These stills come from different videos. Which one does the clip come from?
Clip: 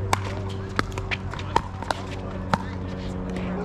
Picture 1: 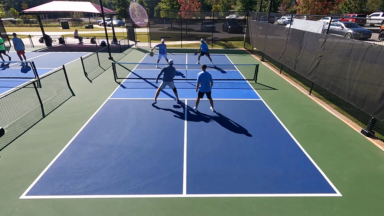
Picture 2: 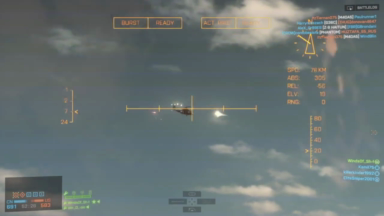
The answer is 1